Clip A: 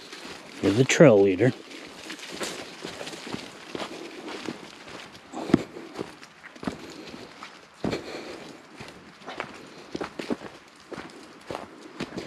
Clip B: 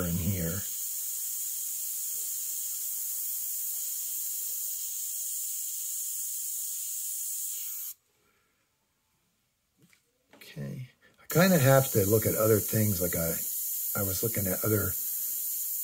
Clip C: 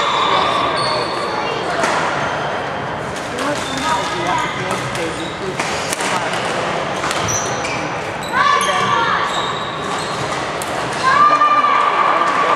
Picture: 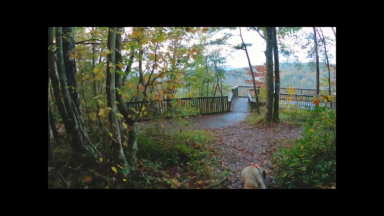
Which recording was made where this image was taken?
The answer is A